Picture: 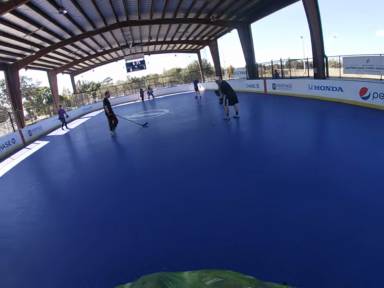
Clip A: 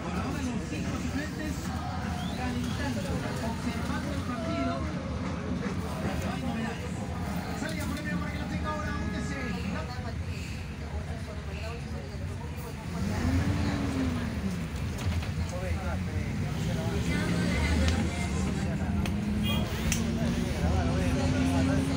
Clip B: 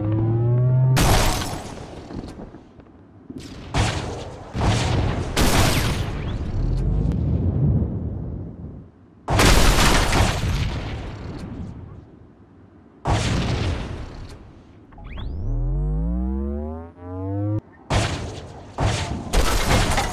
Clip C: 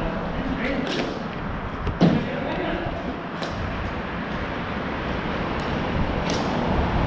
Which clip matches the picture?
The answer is C